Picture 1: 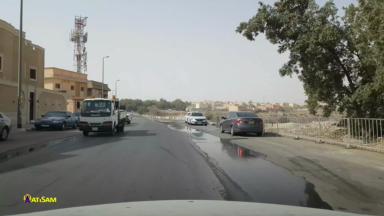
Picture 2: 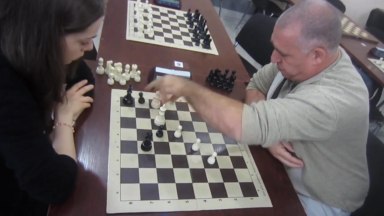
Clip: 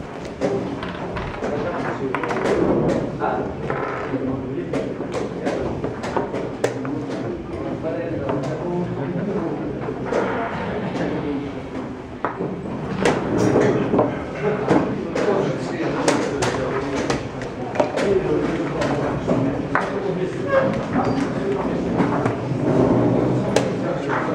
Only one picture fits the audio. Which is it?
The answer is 2